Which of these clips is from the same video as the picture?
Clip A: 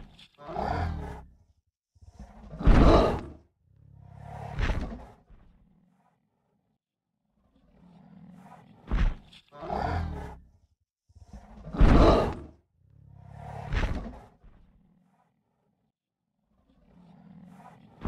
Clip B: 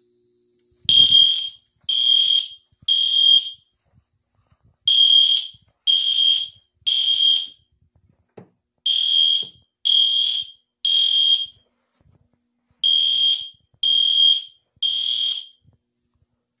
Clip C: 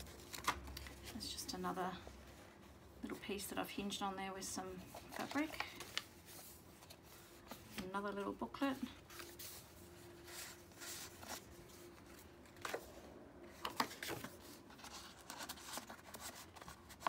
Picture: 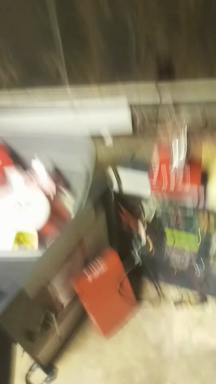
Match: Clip B